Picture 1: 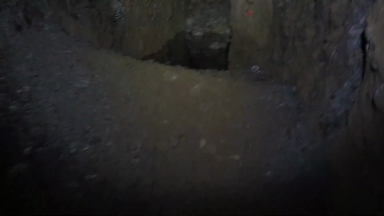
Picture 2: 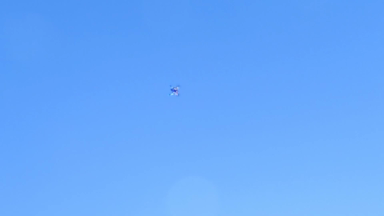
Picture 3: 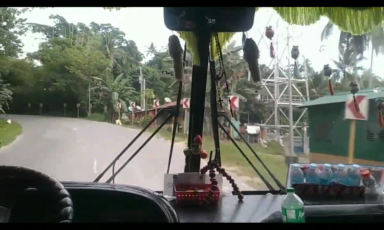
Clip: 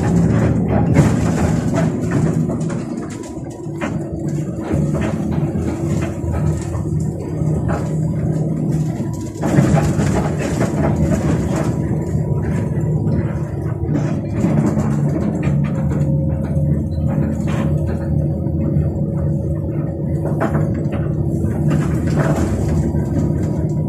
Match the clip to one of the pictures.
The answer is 3